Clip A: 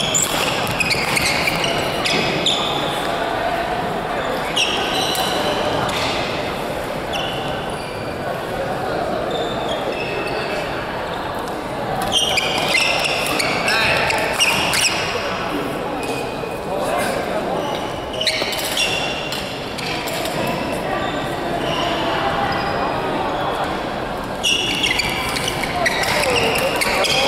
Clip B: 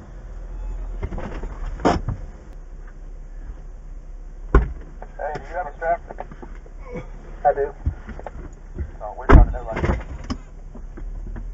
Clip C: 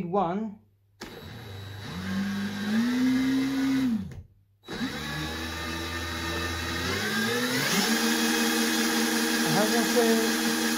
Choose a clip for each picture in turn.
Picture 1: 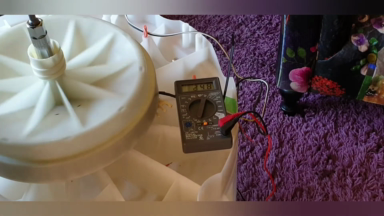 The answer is C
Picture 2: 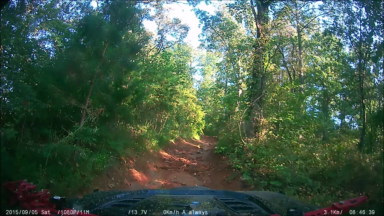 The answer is B